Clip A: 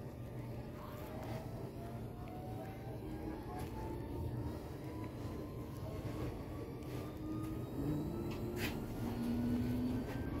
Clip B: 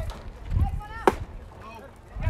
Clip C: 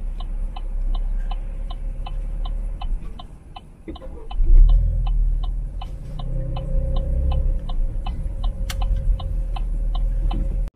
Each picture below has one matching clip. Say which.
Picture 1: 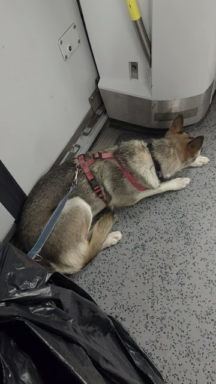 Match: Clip A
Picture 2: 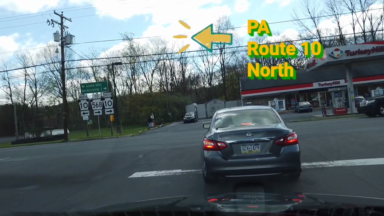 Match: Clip C